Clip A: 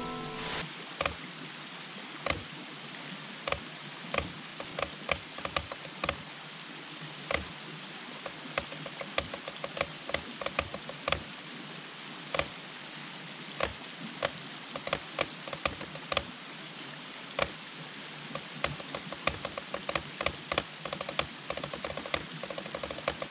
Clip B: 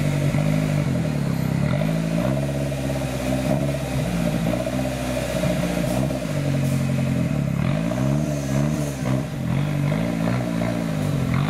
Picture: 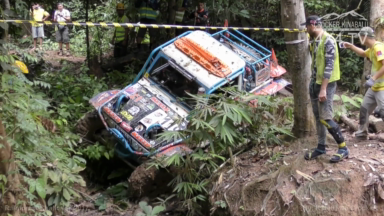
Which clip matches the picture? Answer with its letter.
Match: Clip B